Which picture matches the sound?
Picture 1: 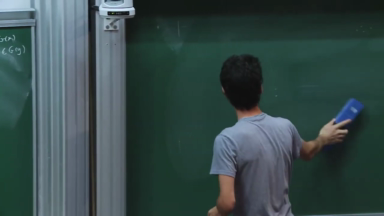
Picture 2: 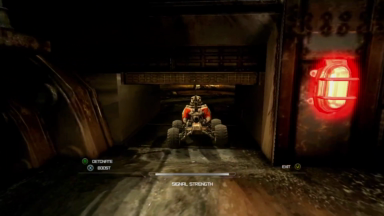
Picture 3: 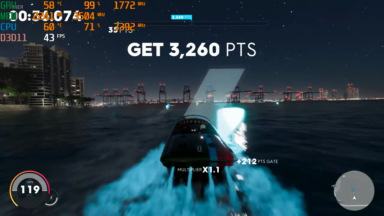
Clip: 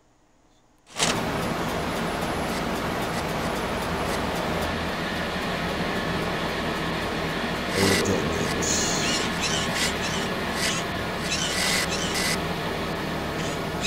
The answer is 2